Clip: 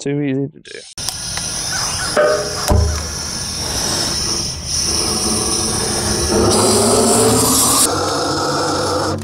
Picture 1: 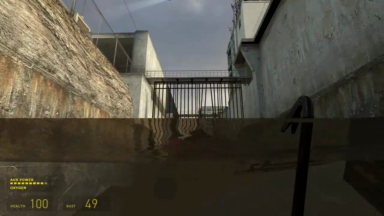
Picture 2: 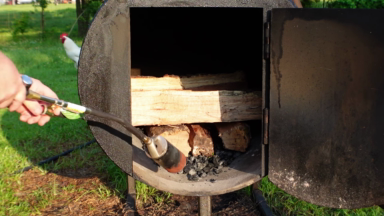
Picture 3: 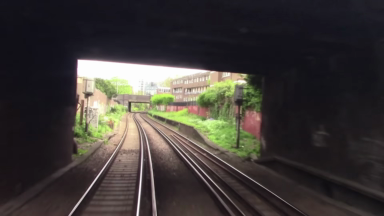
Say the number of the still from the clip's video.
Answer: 2